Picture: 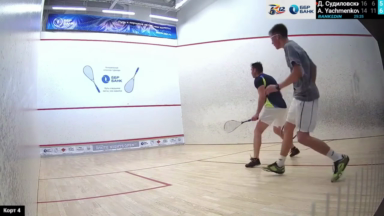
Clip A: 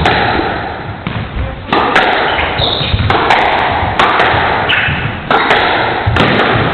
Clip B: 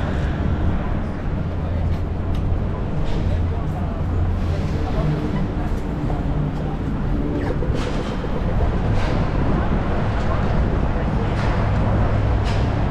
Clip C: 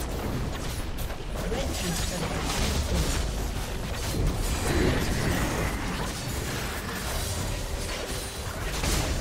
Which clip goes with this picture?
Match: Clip A